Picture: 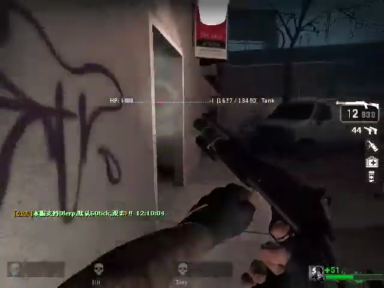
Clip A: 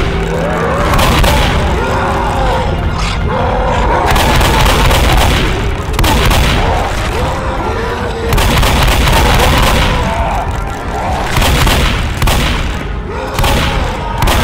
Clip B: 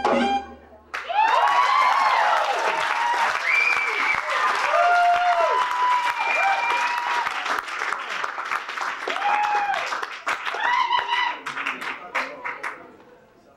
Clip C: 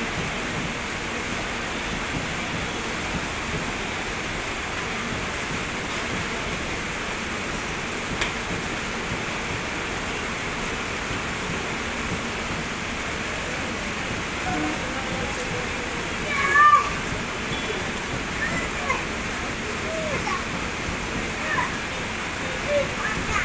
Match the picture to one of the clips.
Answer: A